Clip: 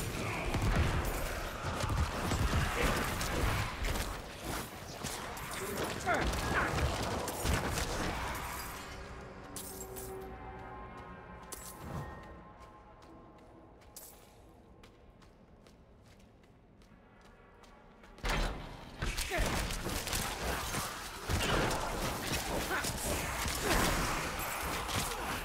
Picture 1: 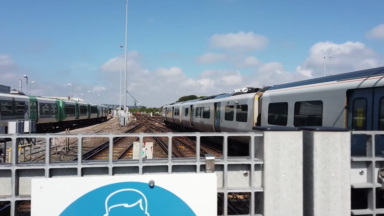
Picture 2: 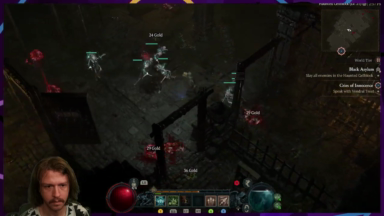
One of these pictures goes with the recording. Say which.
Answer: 2